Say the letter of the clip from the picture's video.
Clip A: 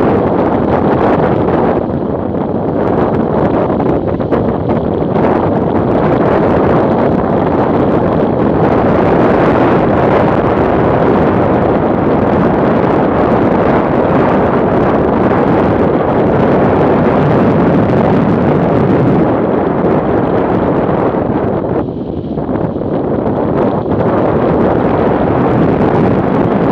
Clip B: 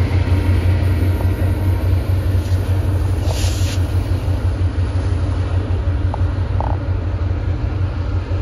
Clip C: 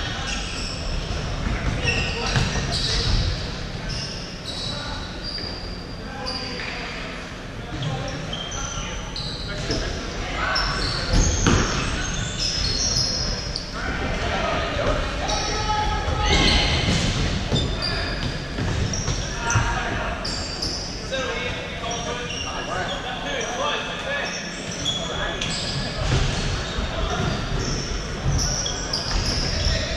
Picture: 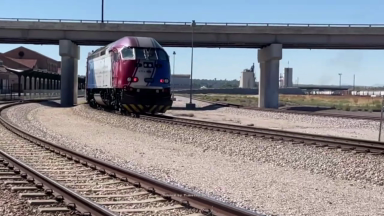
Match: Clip B